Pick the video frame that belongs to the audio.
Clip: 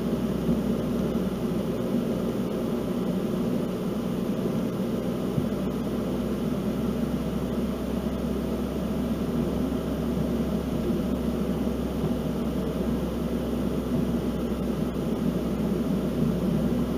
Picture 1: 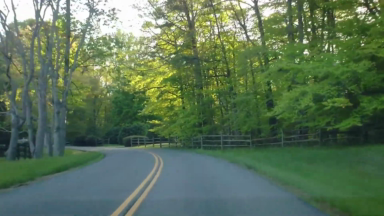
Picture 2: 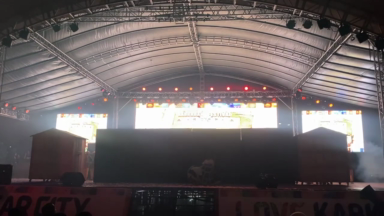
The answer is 1